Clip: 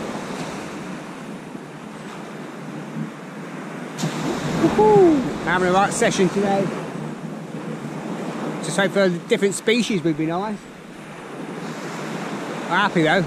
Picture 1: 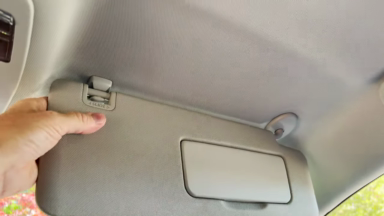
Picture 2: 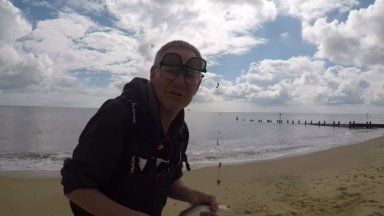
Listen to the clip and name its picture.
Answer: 2